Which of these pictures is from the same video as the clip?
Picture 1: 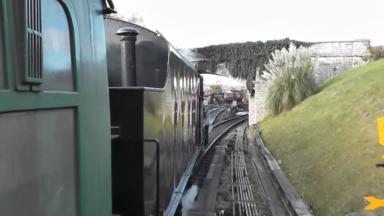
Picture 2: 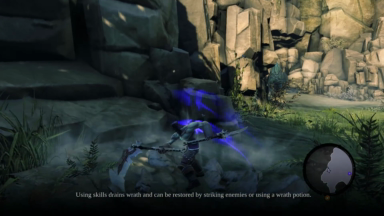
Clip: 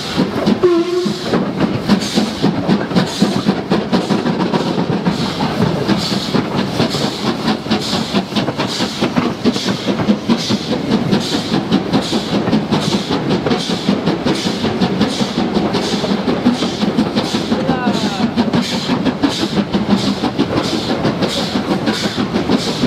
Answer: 1